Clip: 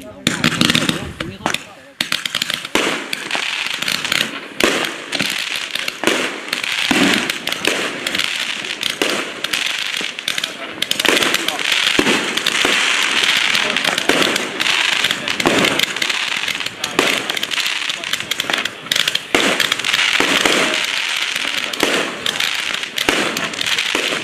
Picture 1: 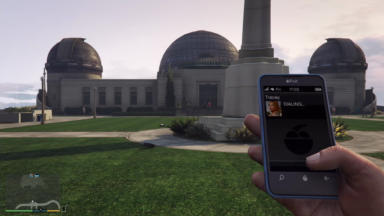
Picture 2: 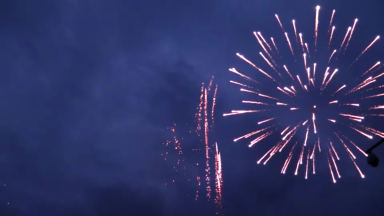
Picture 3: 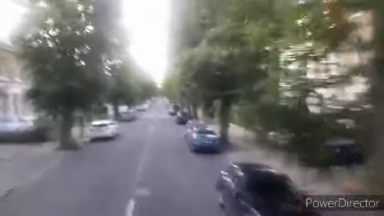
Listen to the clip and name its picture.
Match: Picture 2